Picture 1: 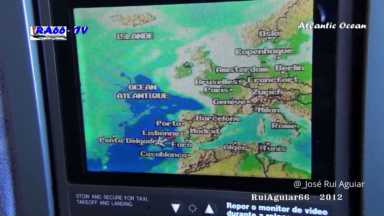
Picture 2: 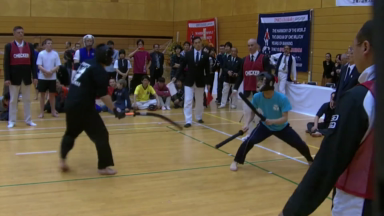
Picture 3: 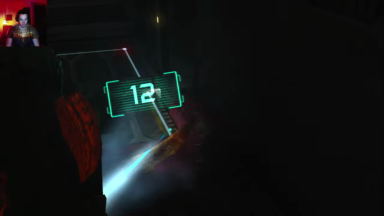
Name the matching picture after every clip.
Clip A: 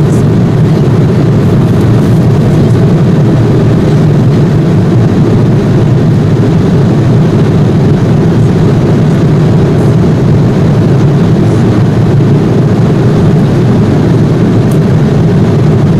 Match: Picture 1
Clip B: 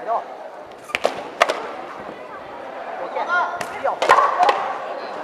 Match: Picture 2